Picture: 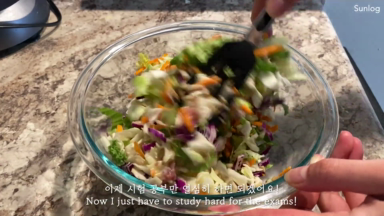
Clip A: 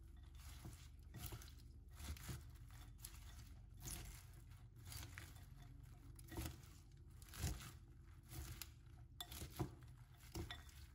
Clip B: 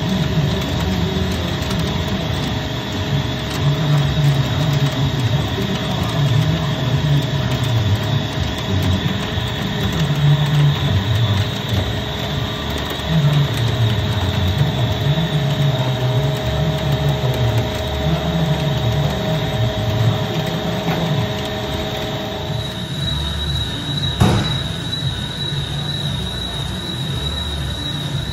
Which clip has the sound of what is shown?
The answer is A